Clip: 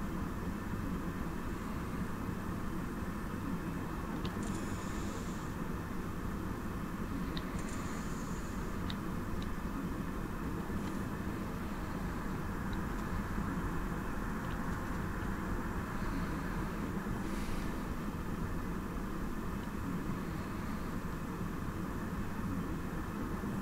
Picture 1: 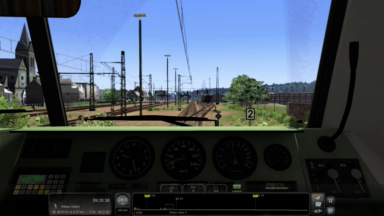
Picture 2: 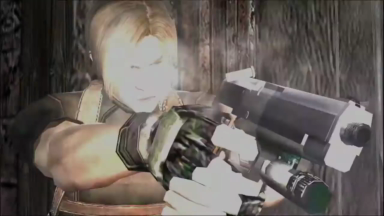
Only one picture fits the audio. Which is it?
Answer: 1